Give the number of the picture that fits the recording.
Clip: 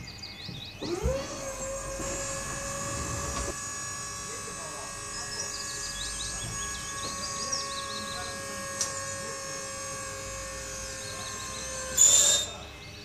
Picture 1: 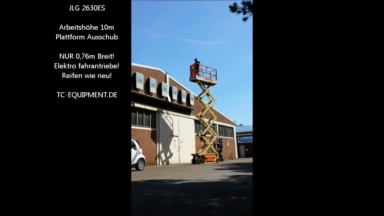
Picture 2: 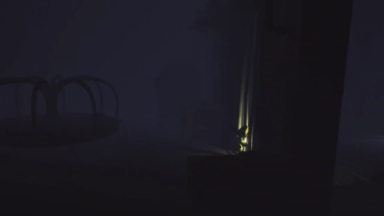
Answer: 1